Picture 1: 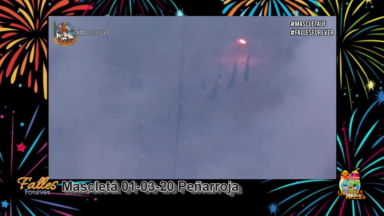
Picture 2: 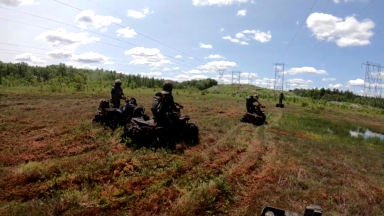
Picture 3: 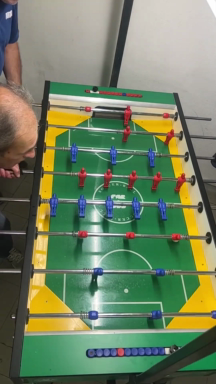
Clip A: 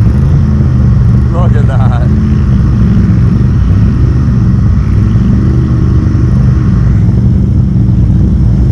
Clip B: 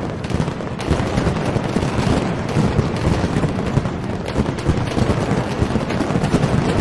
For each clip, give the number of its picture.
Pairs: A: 2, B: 1